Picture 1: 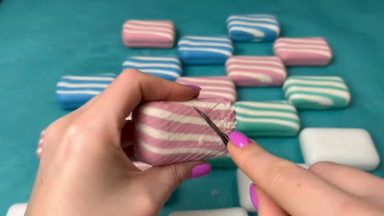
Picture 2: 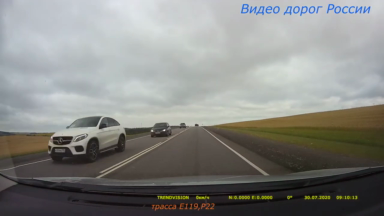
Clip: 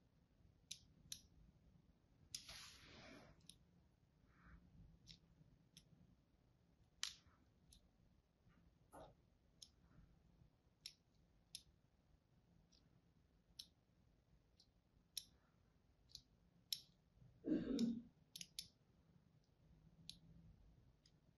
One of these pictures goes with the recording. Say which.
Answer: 1